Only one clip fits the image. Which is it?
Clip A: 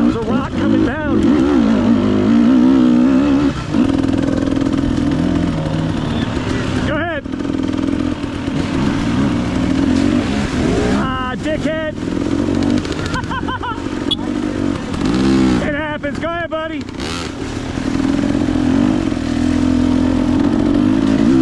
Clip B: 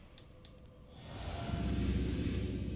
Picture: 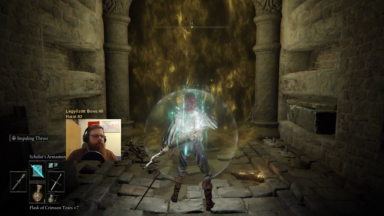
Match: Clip B